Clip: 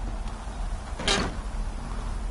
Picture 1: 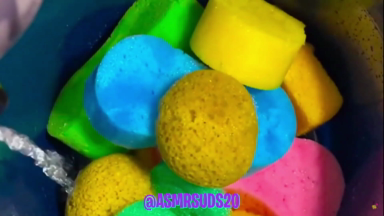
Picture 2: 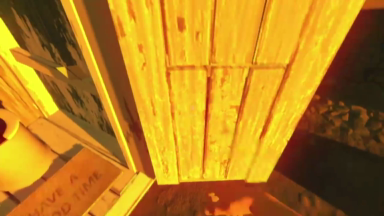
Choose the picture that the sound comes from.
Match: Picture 2